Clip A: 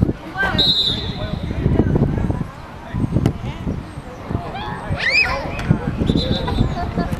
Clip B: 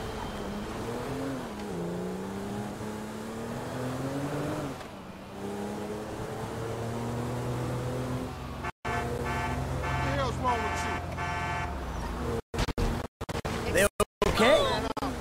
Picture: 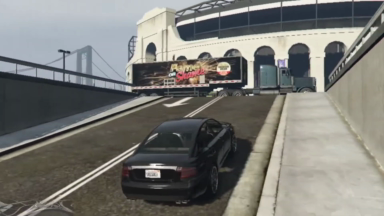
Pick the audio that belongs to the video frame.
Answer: B